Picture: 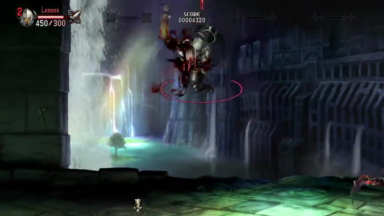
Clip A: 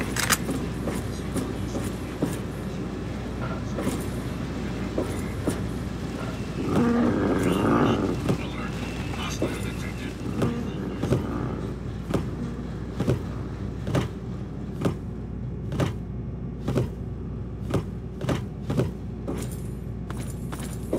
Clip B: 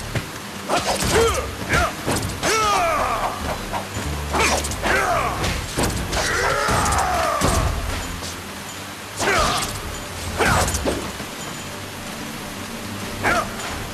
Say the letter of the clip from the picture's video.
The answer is B